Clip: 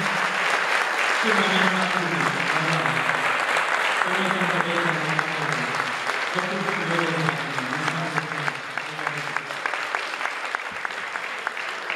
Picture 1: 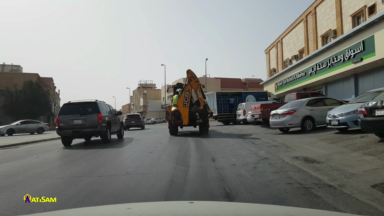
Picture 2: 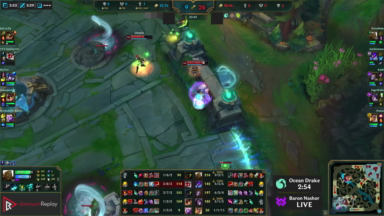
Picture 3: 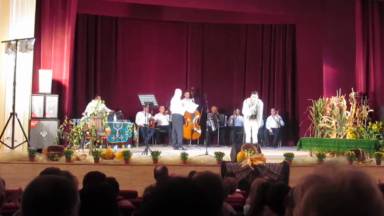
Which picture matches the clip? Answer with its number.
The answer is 3